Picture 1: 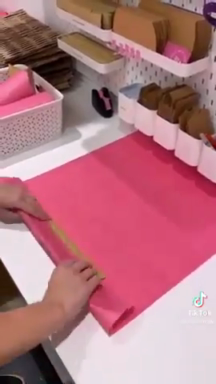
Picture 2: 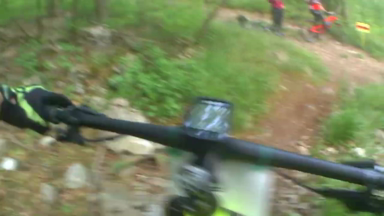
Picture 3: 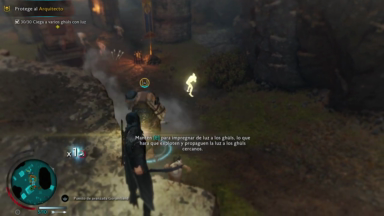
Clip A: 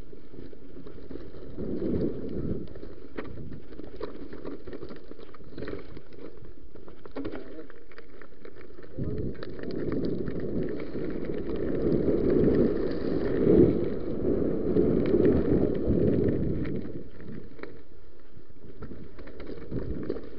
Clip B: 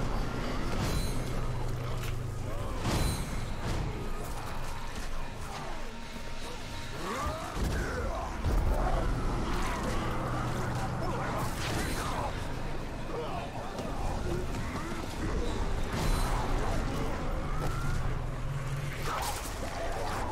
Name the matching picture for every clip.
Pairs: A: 2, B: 3